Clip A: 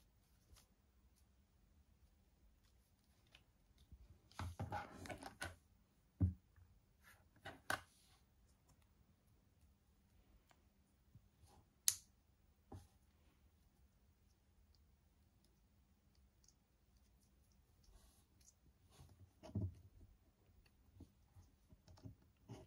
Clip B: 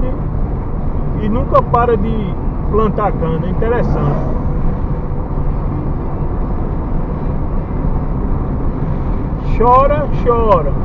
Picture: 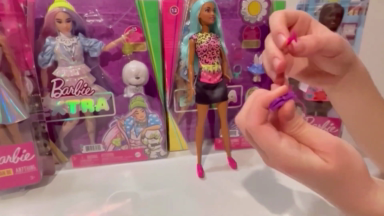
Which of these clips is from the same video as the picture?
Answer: A